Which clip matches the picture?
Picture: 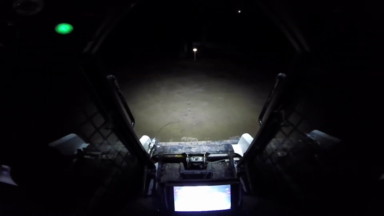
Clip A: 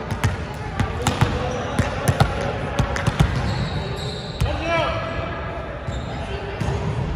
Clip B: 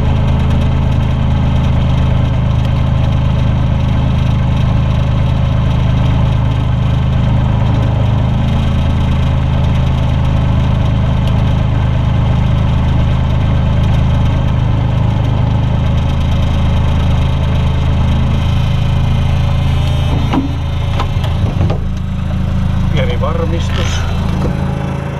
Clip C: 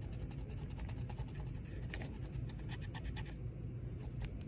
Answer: B